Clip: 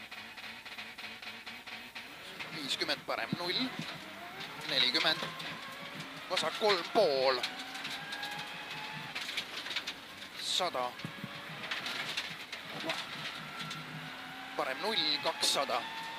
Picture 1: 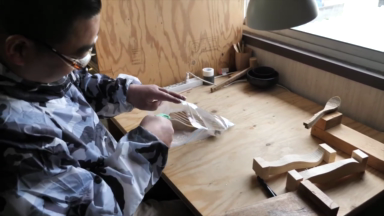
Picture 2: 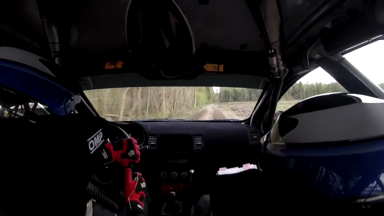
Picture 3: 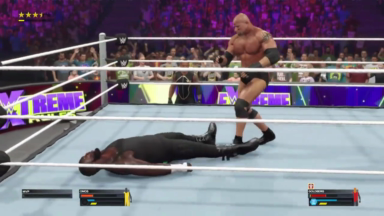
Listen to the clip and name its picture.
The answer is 2